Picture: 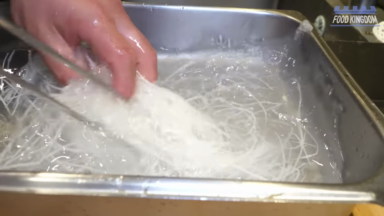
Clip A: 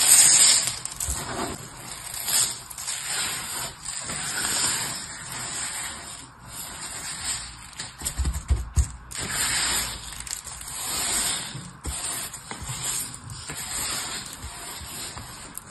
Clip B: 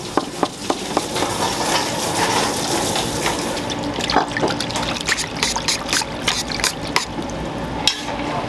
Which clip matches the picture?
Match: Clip B